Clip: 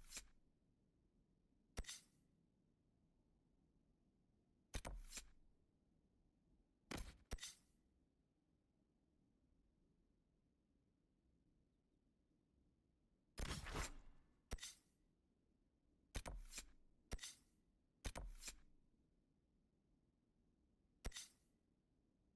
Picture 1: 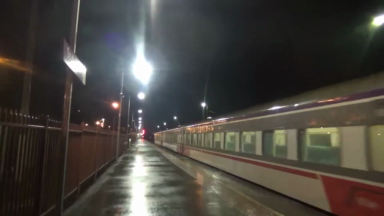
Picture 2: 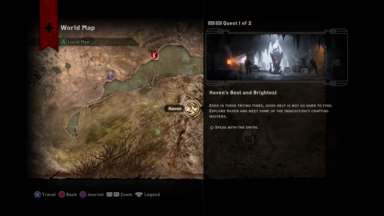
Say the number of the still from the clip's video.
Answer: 2